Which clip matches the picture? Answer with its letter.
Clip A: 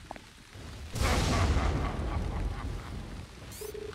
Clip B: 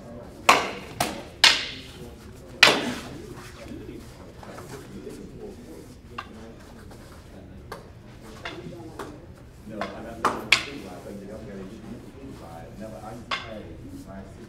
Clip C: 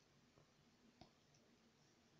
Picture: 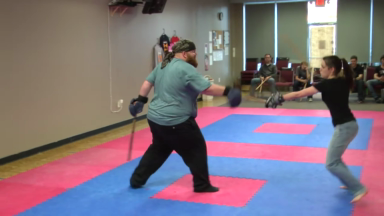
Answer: B